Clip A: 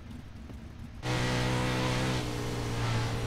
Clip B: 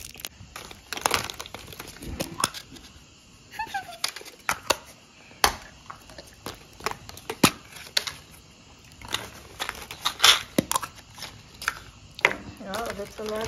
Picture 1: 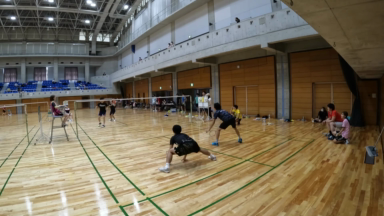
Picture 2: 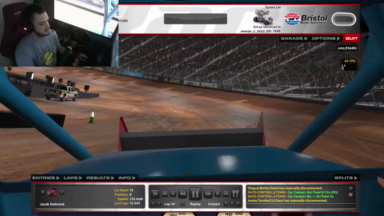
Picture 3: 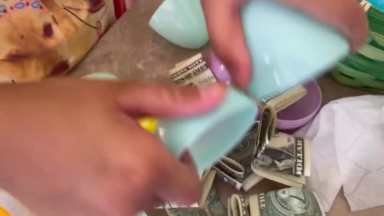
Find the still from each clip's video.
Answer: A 2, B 3